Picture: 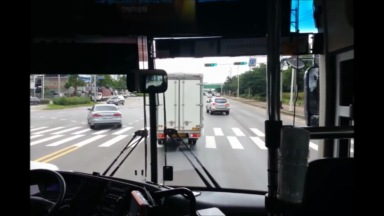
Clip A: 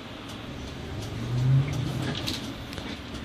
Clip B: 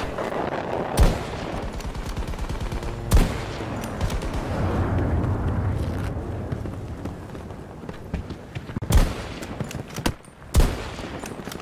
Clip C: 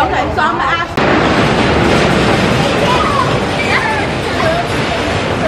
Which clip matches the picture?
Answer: A